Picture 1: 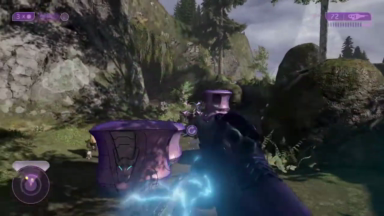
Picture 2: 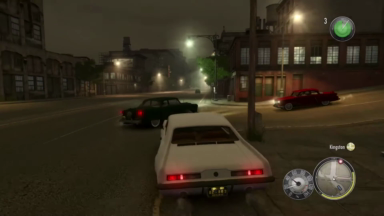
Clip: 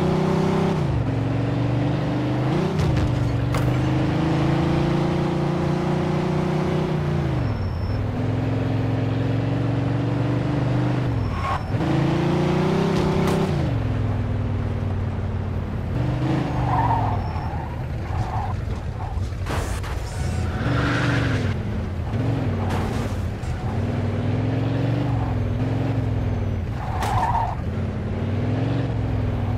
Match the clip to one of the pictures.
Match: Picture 2